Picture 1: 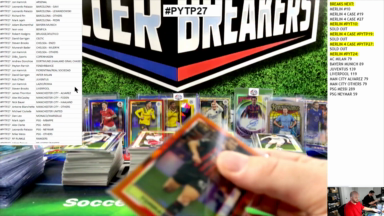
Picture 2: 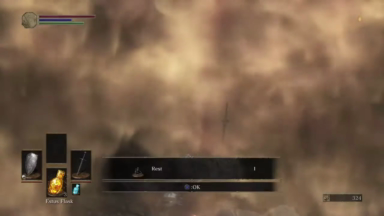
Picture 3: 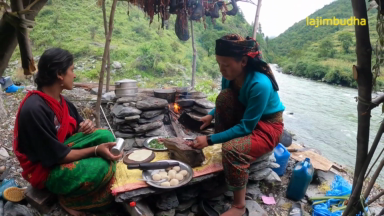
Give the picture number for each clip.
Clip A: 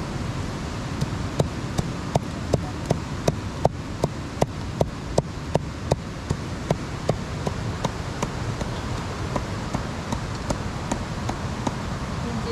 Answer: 3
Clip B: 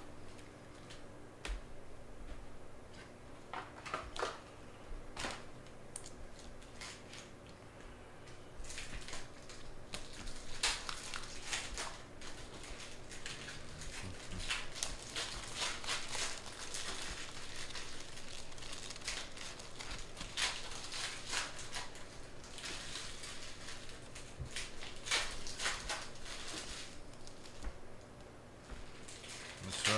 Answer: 1